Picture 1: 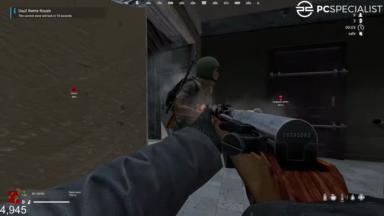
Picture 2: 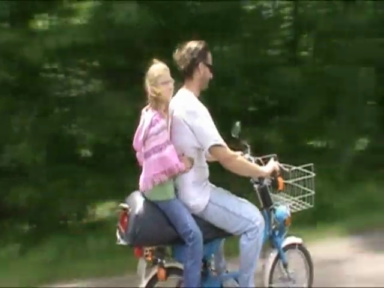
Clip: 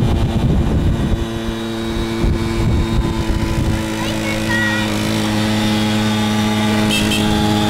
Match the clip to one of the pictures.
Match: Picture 2